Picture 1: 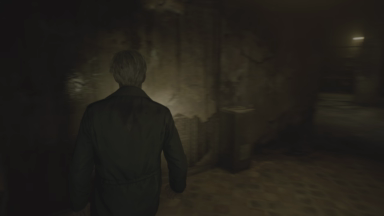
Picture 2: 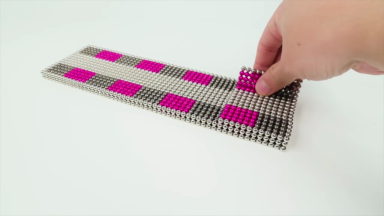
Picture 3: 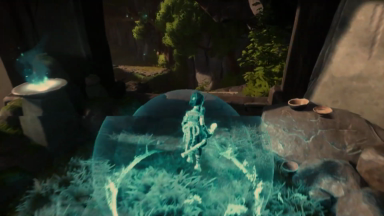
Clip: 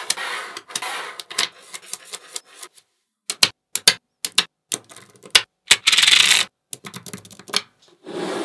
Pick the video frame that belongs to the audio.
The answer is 2